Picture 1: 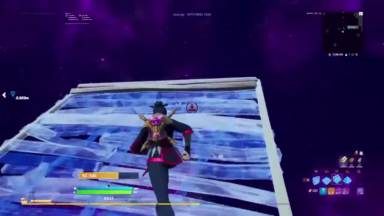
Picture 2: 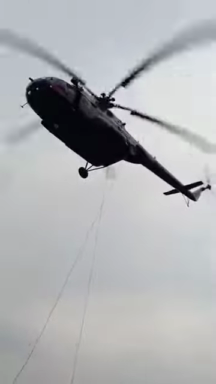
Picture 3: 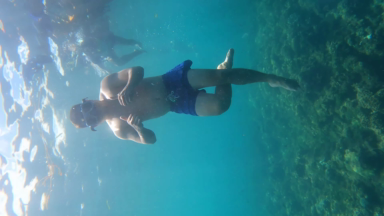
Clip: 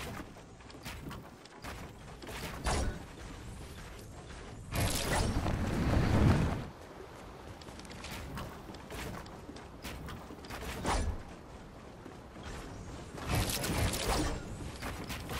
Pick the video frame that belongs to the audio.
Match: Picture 1